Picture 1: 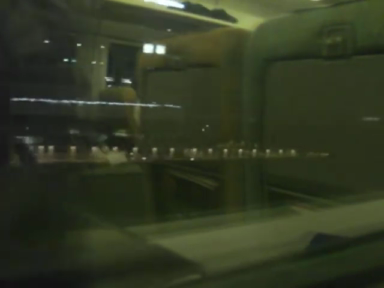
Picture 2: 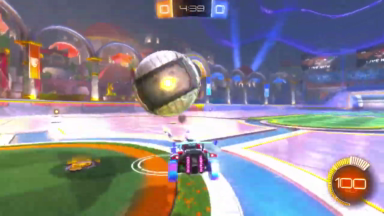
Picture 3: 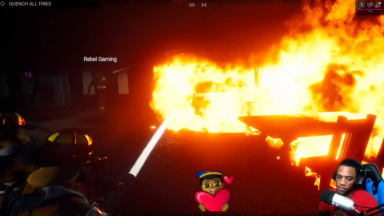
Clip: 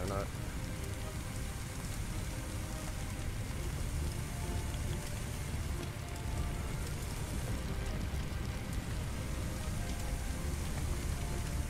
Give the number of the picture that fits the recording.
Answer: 3